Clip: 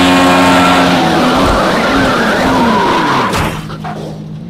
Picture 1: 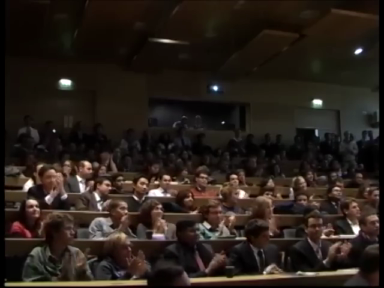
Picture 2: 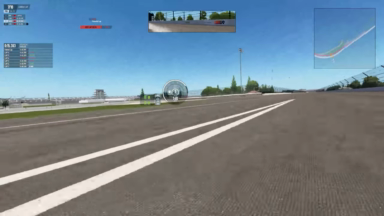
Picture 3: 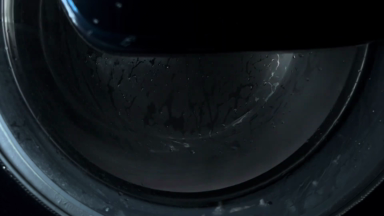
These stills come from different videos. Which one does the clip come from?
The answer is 2